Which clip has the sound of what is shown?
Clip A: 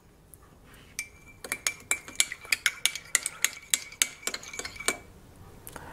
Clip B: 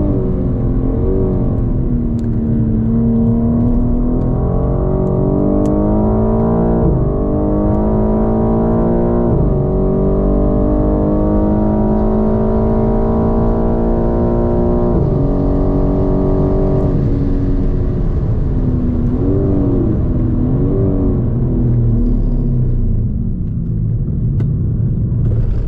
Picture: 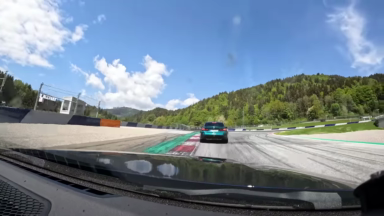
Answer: B